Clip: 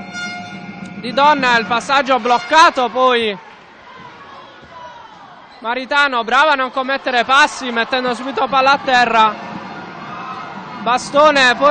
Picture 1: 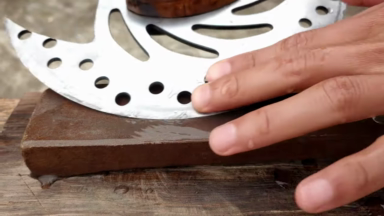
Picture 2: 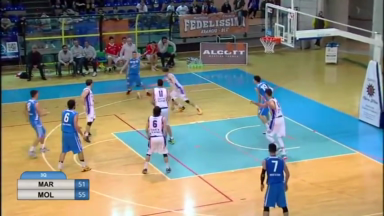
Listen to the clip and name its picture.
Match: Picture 2